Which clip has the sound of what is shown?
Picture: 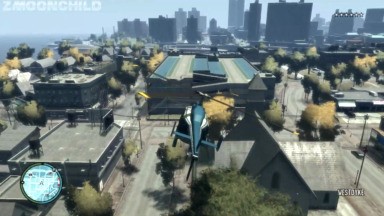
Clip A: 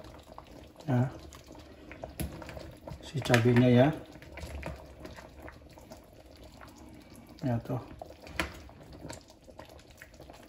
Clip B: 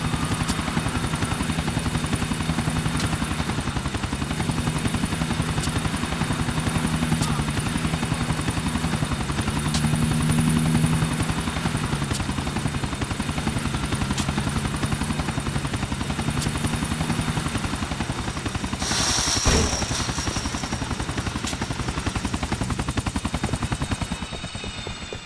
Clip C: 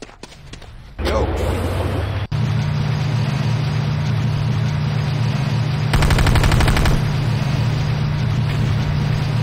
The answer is B